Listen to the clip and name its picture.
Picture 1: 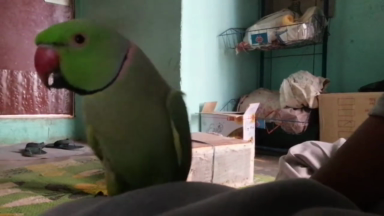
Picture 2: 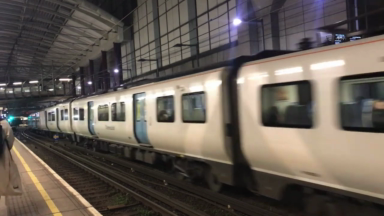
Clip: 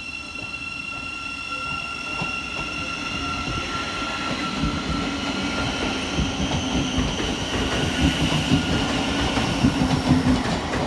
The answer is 2